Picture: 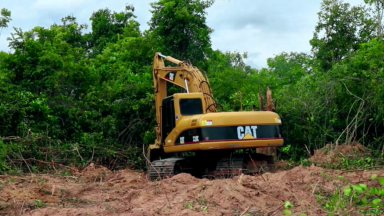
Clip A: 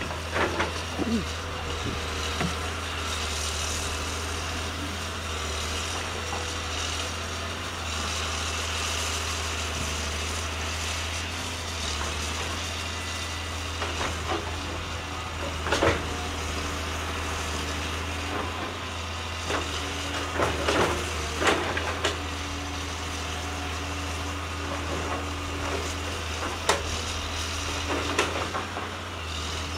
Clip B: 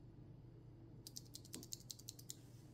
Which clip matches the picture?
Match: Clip A